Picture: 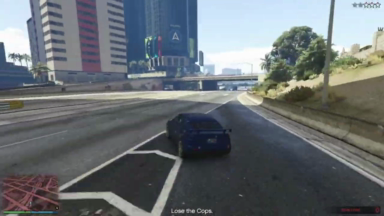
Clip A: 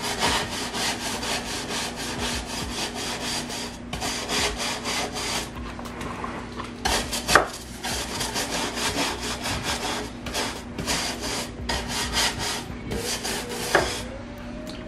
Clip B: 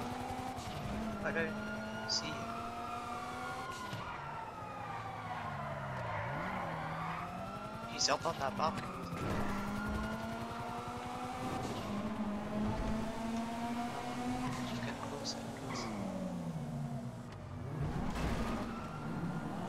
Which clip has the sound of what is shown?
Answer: B